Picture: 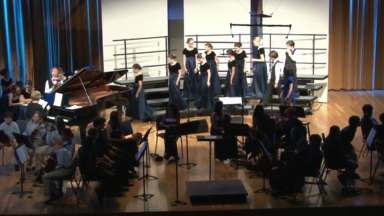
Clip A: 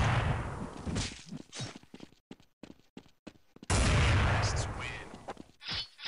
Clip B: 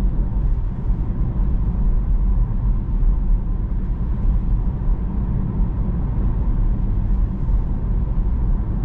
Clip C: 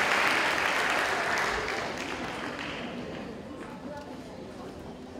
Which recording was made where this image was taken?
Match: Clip C